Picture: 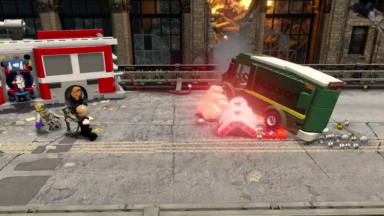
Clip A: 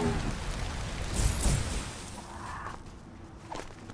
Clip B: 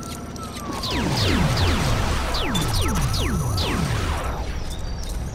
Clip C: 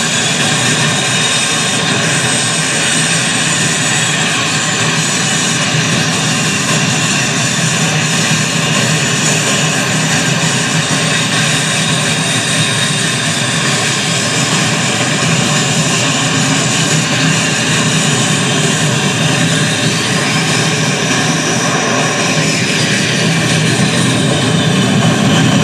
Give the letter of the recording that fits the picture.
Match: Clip A